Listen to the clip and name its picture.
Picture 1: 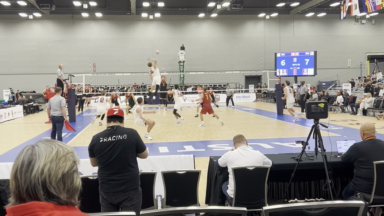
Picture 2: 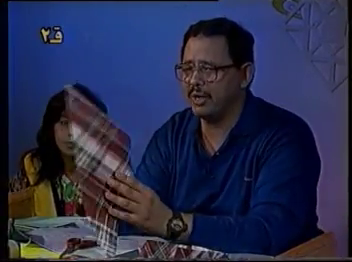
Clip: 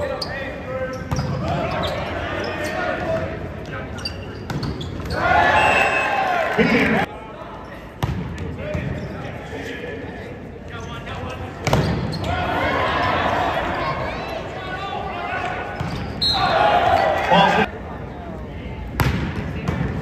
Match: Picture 1